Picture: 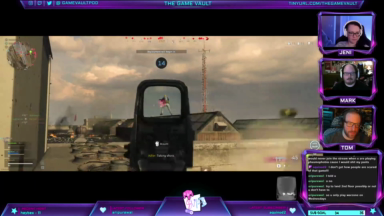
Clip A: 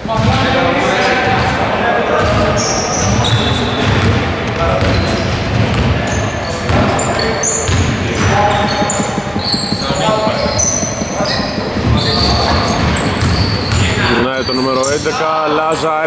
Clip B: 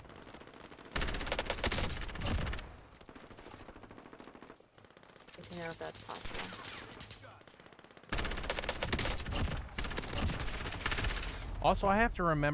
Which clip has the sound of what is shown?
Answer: B